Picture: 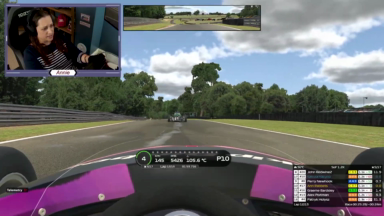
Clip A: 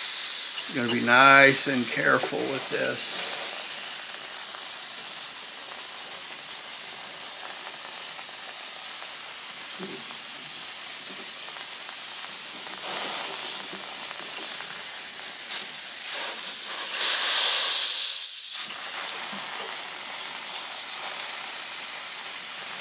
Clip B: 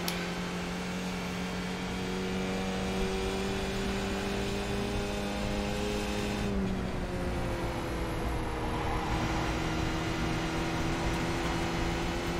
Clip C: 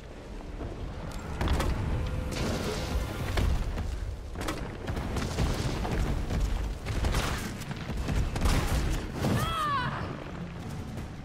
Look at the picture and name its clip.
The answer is B